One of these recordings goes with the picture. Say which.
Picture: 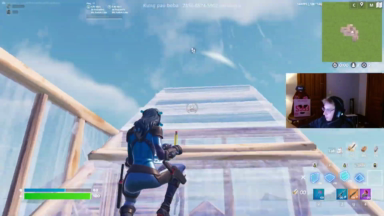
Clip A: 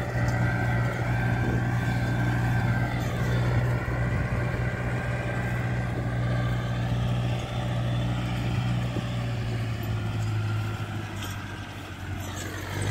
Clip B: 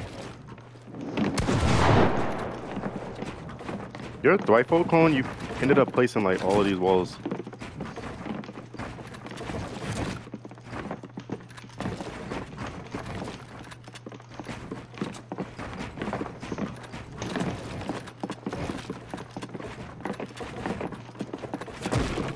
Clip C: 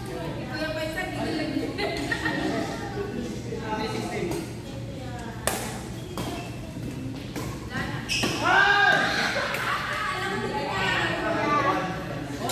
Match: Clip B